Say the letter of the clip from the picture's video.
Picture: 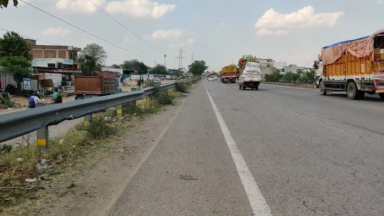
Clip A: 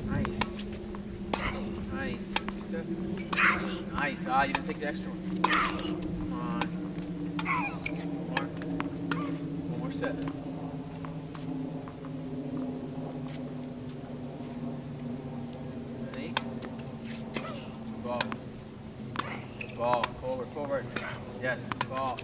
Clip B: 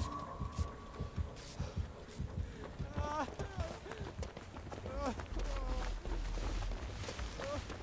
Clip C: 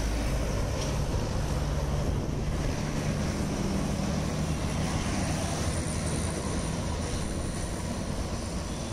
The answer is C